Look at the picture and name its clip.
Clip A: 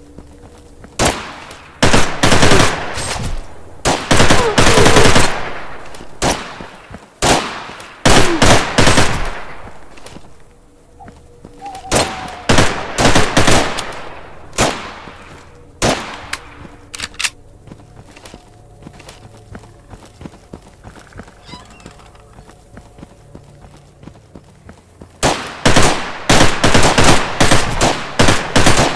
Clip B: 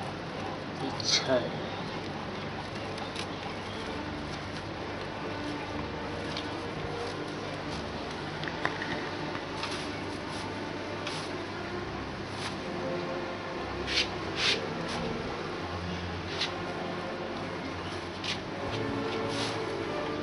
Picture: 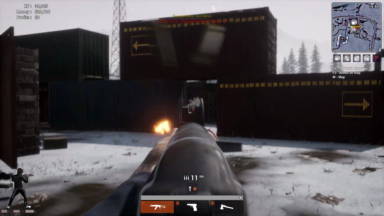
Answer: A